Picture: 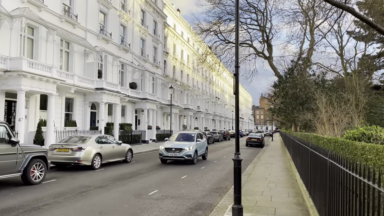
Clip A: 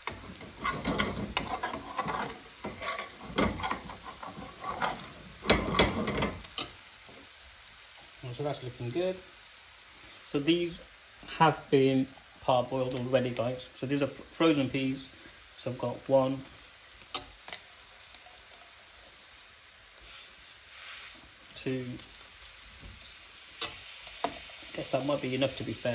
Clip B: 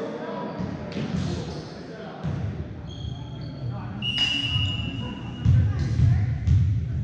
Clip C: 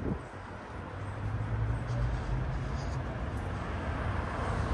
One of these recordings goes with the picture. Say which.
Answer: C